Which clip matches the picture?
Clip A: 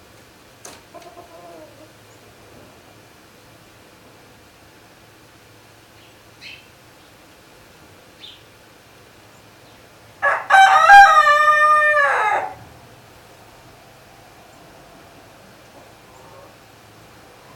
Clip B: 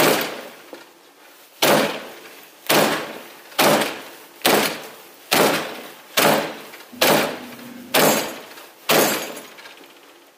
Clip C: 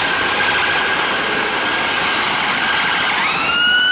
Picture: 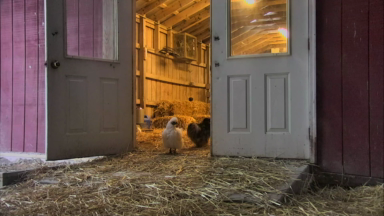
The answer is A